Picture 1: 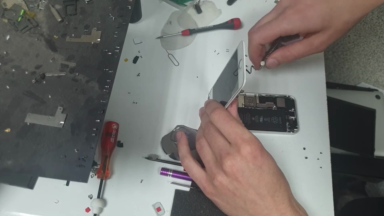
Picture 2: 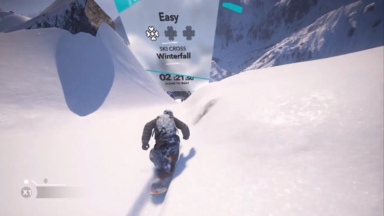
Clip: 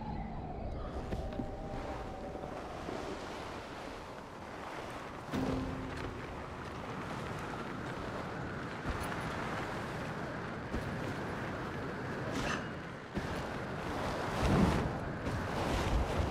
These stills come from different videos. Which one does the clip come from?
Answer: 2